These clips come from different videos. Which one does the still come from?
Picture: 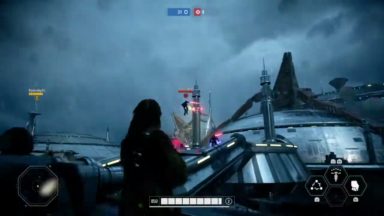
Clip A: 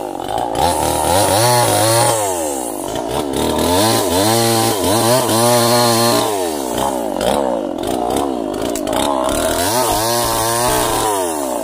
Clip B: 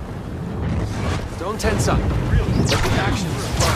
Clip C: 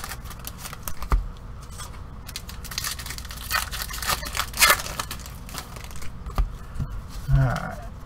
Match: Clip B